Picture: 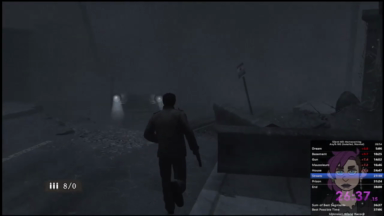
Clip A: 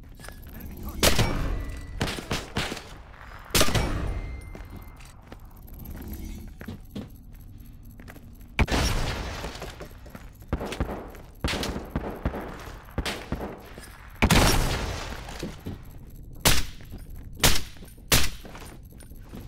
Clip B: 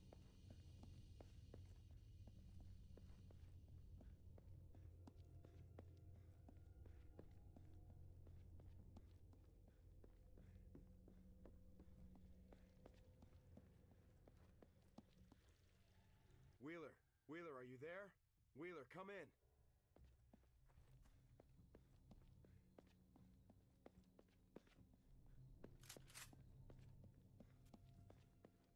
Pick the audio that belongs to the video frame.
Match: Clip B